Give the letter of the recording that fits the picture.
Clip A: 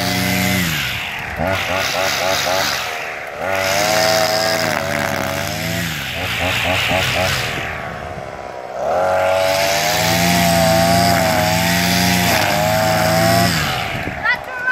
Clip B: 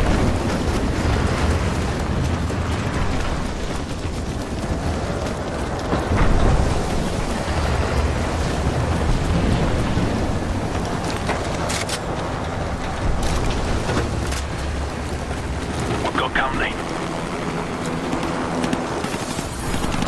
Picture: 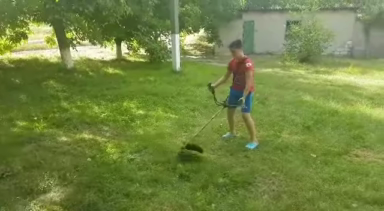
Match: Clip A